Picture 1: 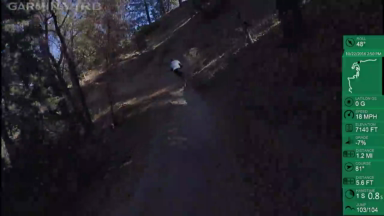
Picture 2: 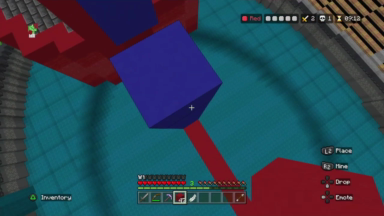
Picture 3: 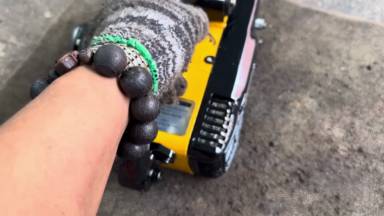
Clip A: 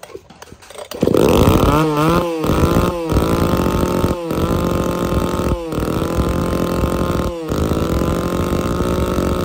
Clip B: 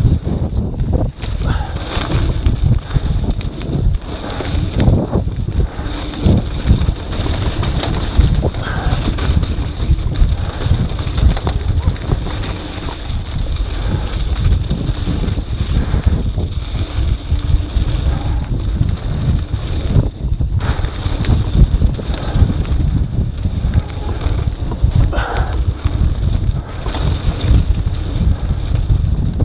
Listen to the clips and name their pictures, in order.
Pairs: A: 3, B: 1